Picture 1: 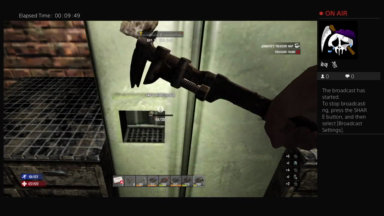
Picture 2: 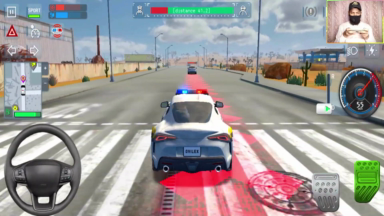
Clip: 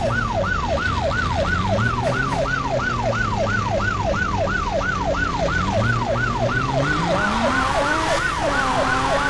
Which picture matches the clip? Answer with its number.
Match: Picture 2